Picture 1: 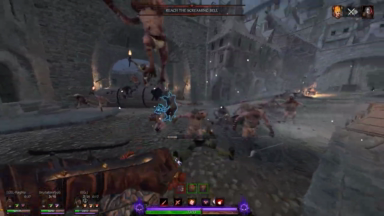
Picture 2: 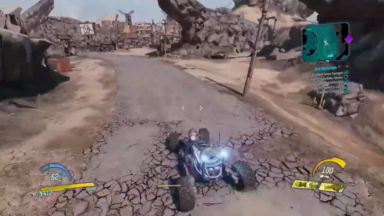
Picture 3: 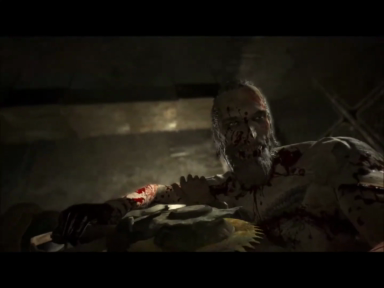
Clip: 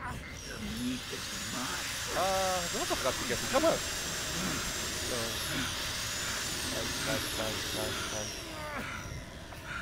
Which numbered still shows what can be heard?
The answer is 3